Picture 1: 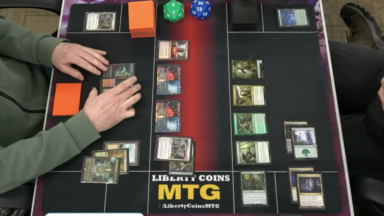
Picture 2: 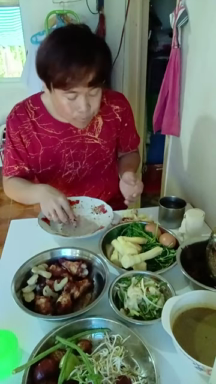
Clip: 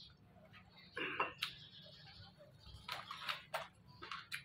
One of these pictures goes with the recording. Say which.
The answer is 2